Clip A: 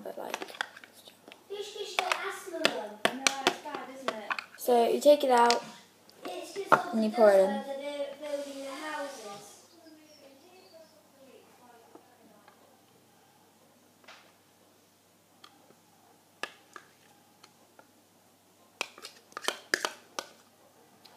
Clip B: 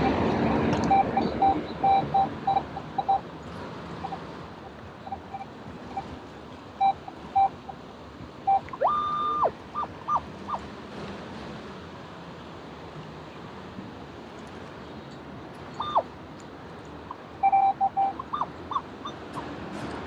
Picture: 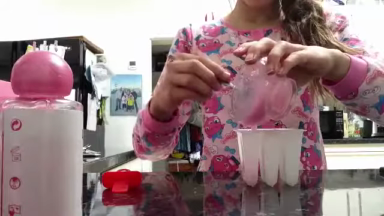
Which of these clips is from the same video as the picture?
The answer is A